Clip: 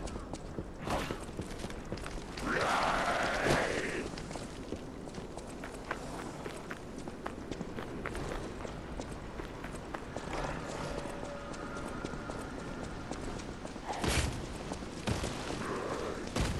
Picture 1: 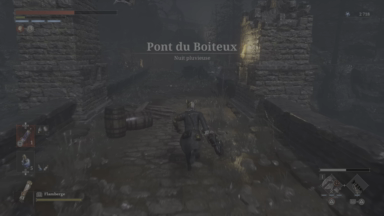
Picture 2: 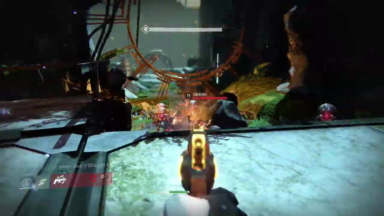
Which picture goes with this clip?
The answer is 1